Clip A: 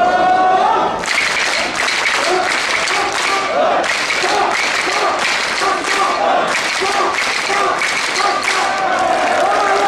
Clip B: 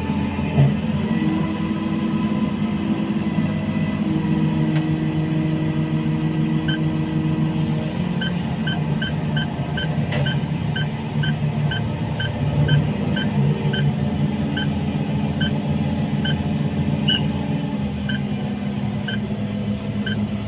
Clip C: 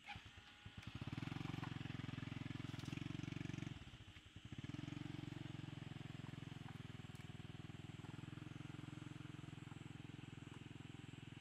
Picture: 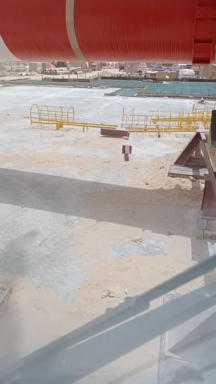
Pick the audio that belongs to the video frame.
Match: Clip B